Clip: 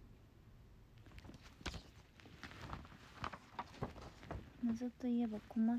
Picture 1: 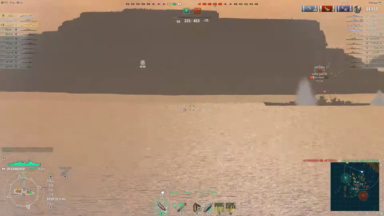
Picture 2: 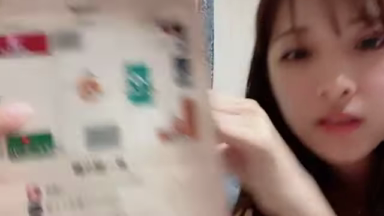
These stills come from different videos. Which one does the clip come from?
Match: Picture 2